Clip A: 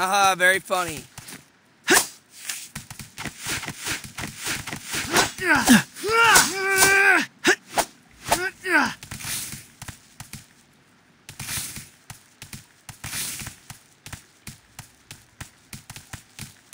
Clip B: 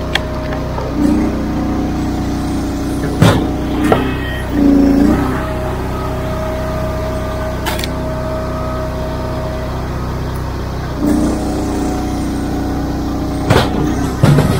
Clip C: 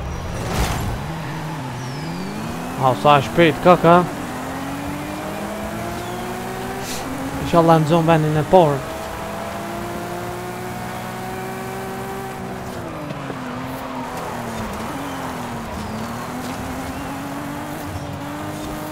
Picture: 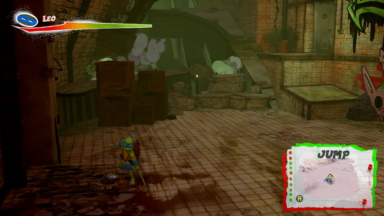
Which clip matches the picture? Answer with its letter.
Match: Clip A